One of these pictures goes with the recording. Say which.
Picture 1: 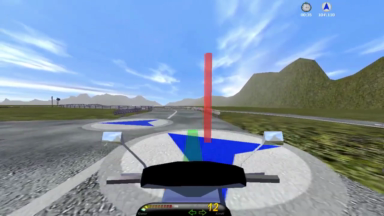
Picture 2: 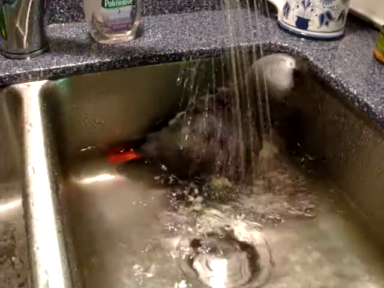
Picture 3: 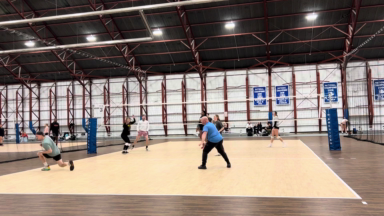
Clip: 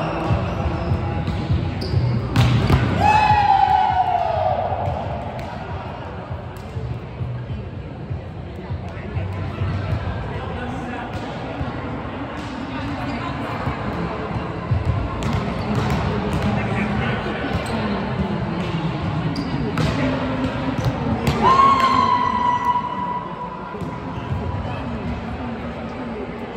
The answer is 3